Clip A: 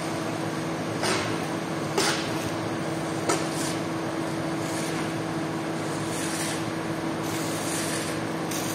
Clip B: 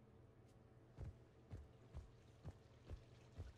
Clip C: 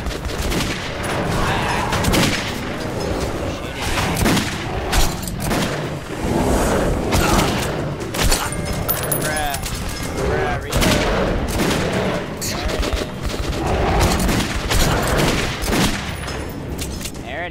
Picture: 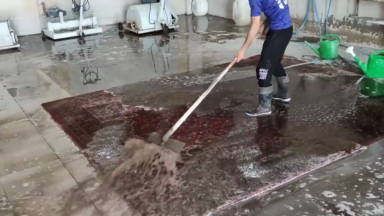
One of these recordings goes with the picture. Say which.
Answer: A